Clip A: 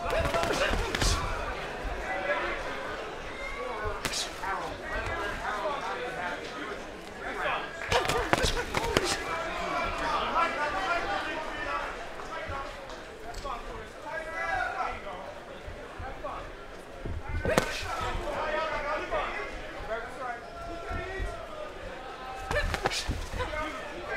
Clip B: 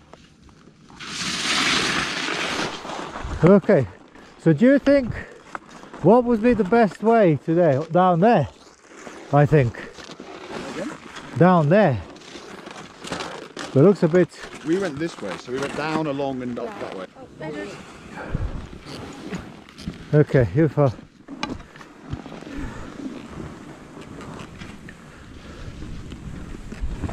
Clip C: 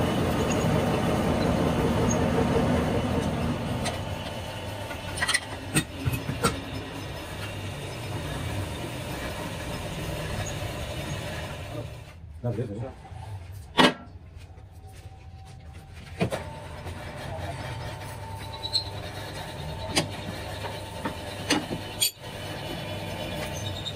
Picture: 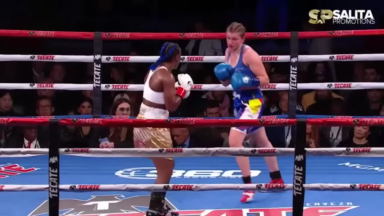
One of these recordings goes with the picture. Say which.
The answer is A